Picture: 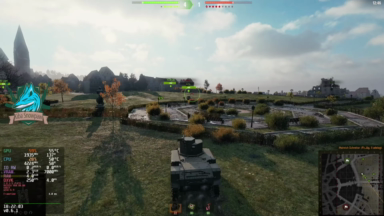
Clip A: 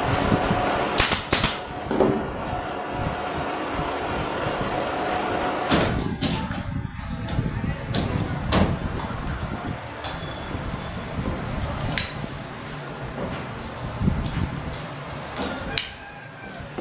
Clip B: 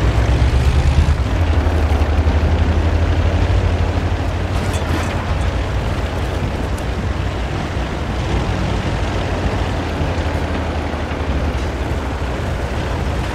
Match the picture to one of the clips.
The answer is B